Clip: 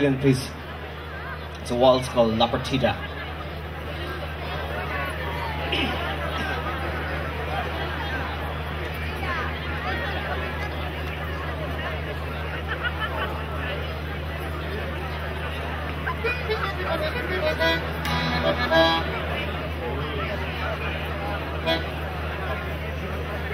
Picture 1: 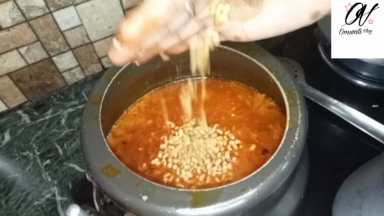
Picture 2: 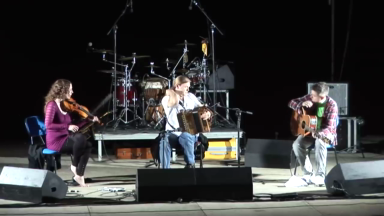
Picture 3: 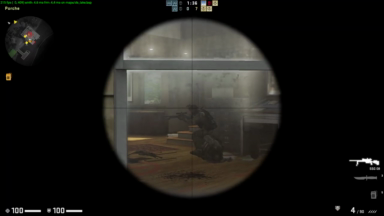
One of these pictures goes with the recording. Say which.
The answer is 2